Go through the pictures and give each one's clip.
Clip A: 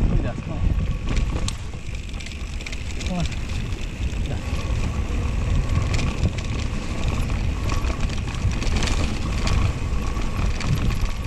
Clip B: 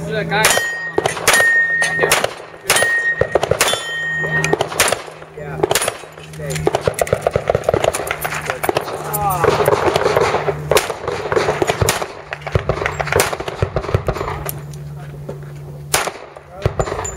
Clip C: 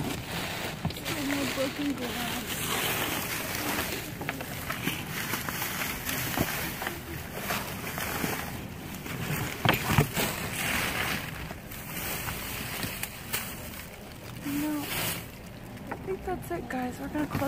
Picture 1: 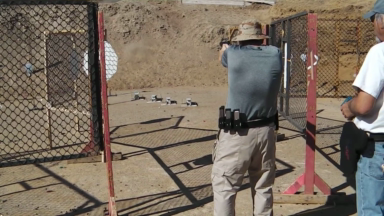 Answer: B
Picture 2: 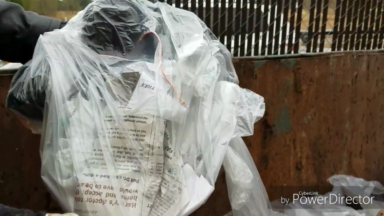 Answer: C